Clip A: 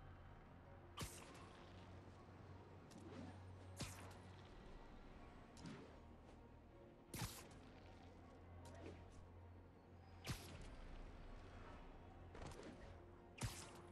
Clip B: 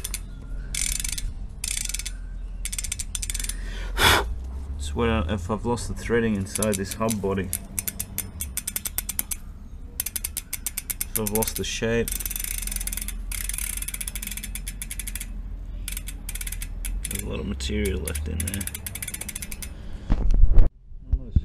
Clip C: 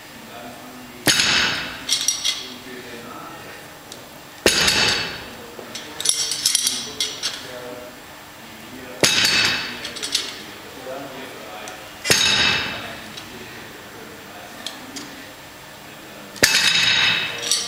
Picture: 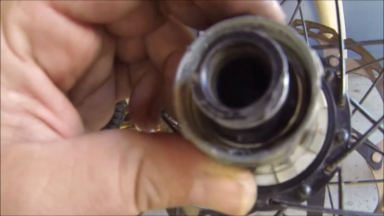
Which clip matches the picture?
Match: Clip B